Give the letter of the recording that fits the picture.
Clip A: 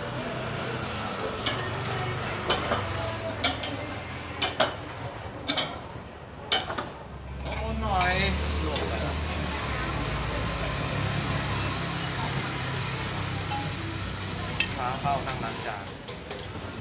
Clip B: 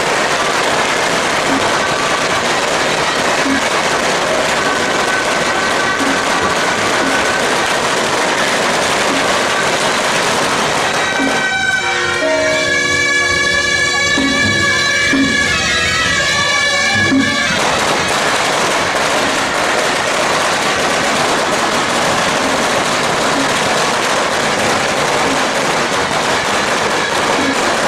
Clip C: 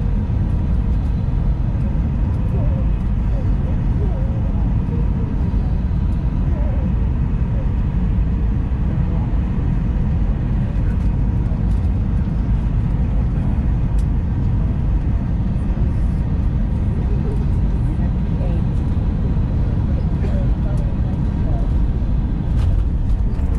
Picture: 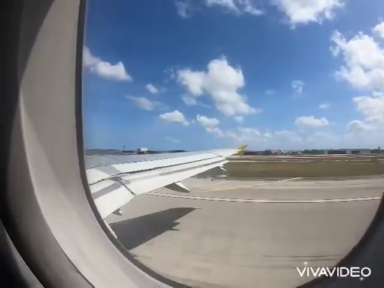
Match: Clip C